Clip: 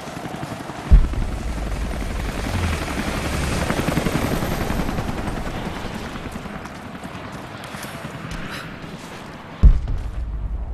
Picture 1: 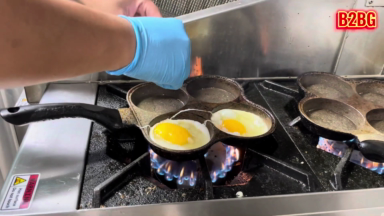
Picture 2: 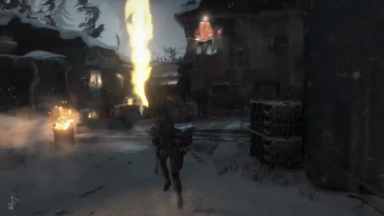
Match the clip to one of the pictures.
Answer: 2